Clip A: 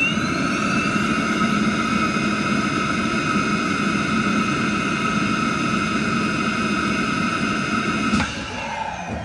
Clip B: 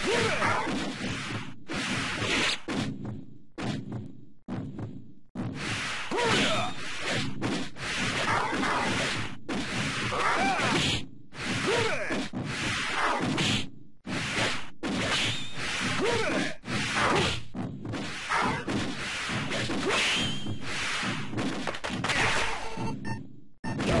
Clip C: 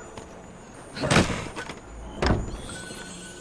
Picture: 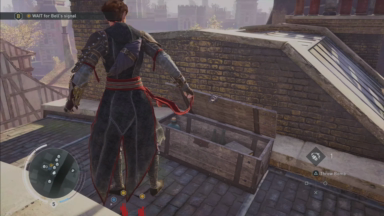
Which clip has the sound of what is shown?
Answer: C